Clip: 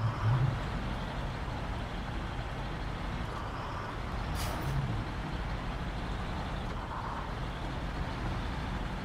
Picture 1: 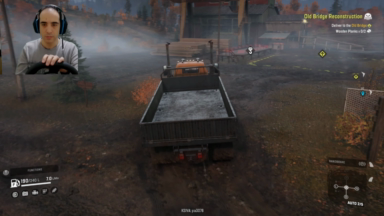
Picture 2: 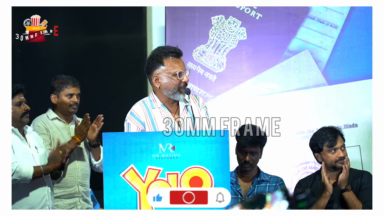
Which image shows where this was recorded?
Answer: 1